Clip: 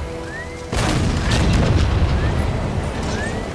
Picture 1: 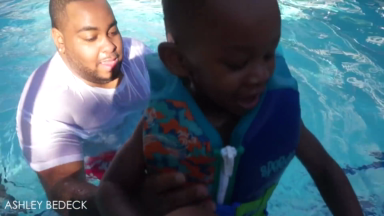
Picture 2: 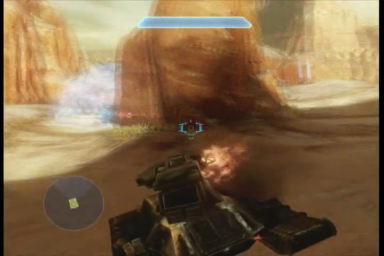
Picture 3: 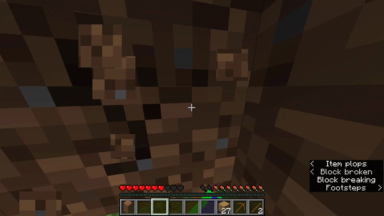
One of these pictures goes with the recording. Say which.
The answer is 2